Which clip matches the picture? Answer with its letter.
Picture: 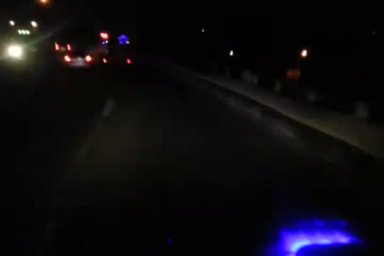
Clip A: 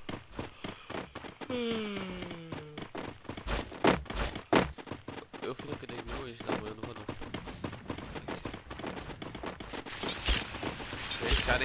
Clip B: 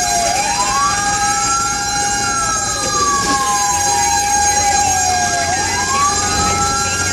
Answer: B